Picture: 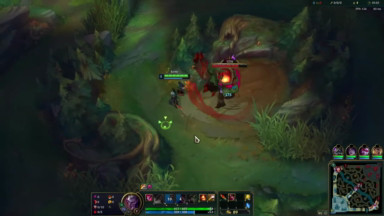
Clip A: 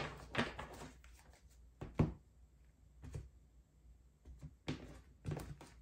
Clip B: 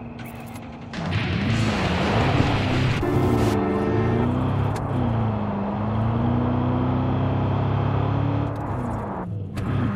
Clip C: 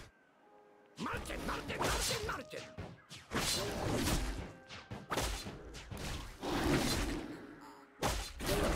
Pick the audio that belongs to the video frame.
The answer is C